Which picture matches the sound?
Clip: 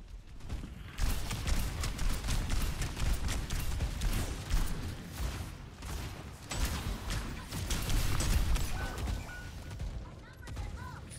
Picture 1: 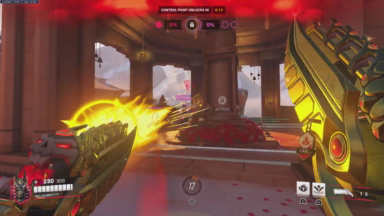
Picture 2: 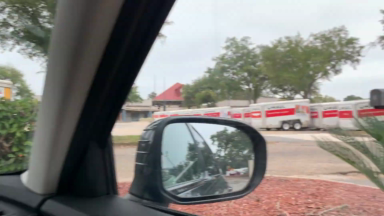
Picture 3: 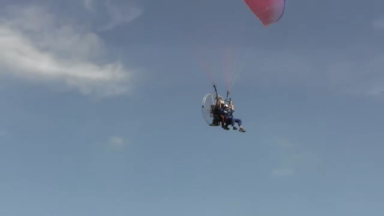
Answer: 1